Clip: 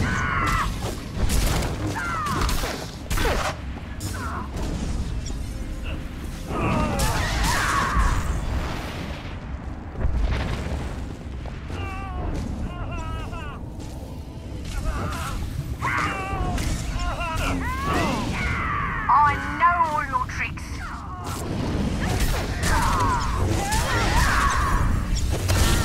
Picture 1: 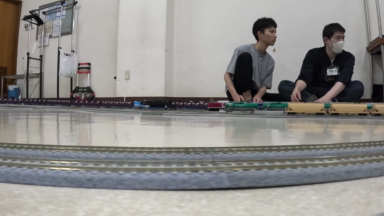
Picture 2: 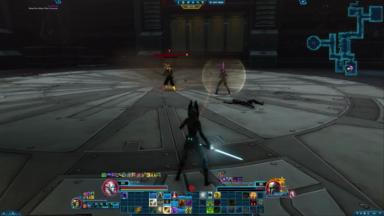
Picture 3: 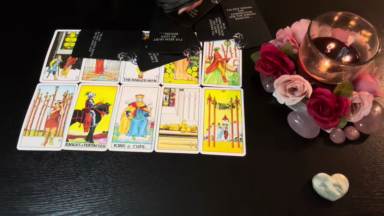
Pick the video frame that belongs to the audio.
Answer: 2